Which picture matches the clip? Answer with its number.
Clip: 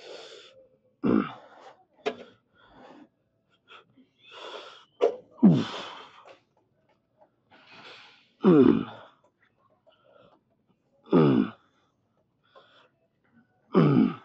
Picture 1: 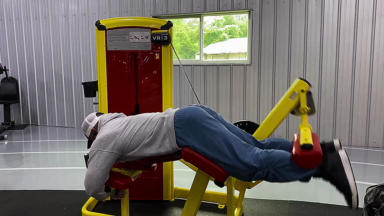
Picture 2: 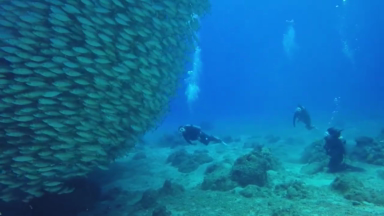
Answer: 1